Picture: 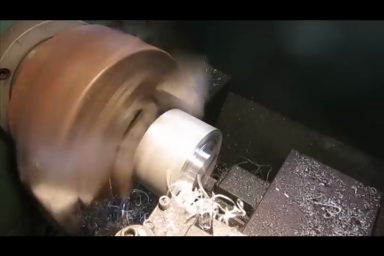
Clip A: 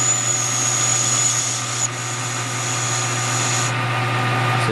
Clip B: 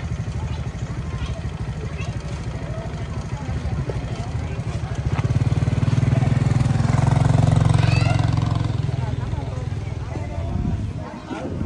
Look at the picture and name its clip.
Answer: A